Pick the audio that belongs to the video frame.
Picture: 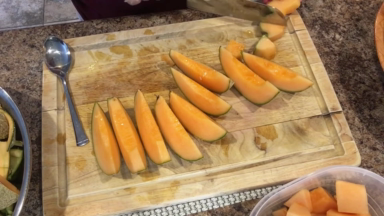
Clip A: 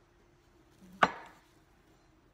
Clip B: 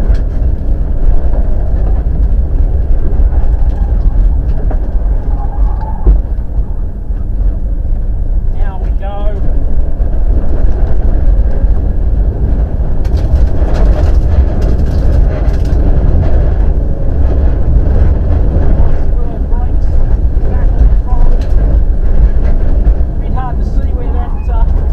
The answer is A